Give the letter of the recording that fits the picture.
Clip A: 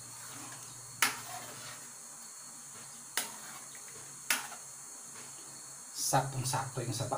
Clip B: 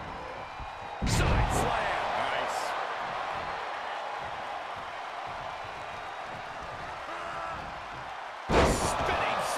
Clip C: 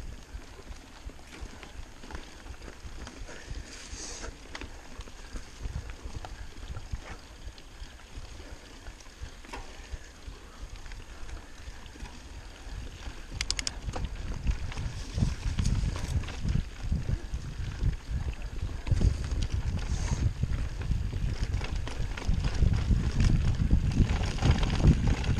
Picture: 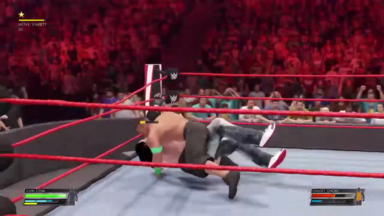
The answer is B